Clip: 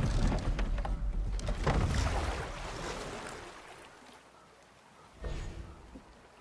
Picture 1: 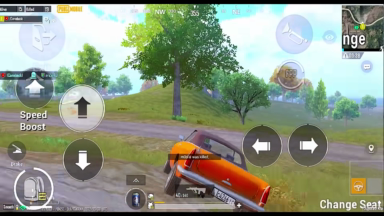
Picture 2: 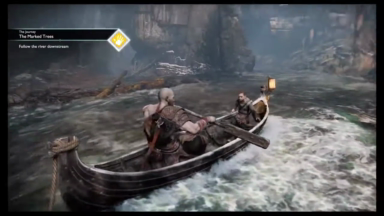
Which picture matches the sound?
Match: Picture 2